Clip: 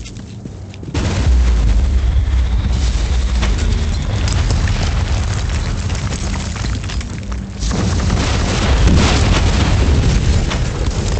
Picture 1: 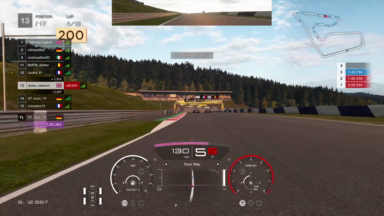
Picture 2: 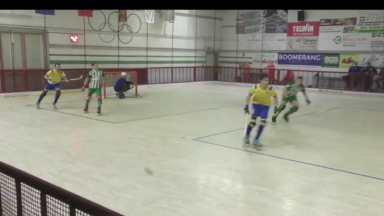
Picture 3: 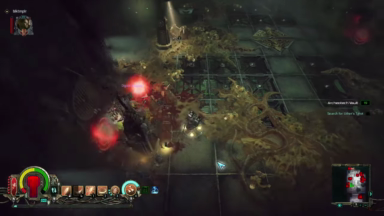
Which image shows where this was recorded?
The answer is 3